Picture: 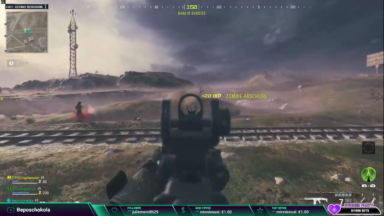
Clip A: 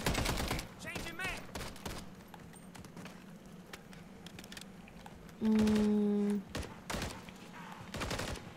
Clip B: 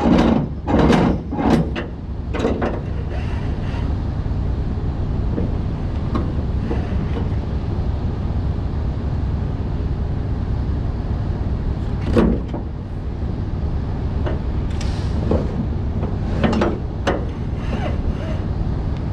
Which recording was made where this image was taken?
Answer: A